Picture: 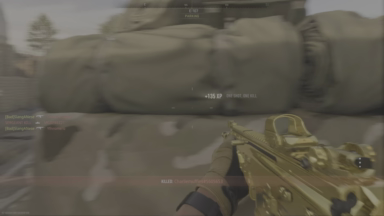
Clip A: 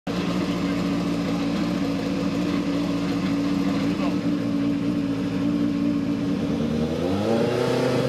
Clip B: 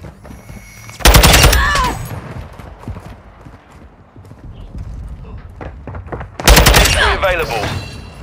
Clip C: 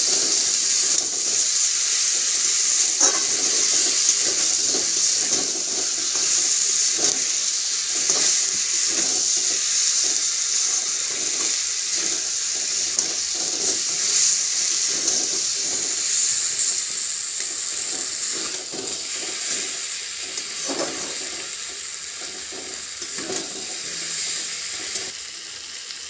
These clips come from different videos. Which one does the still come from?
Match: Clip B